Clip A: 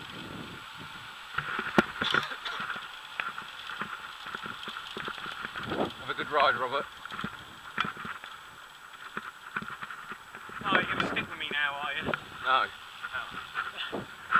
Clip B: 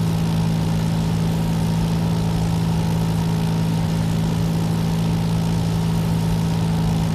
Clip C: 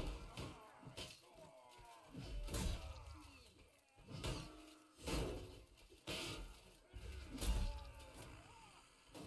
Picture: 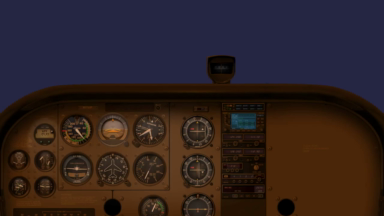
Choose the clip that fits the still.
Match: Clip B